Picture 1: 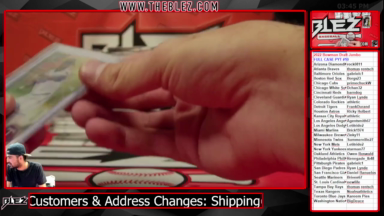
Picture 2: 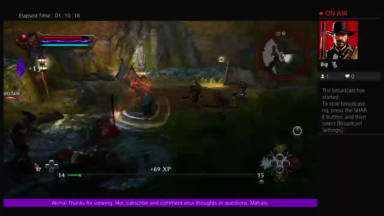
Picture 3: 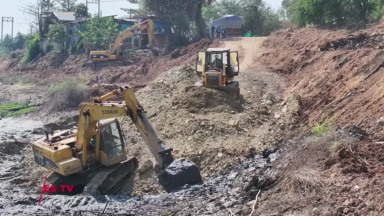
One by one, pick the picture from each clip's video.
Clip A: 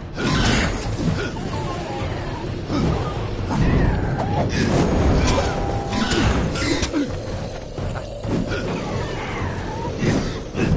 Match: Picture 2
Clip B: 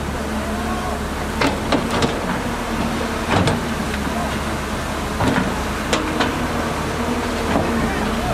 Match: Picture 3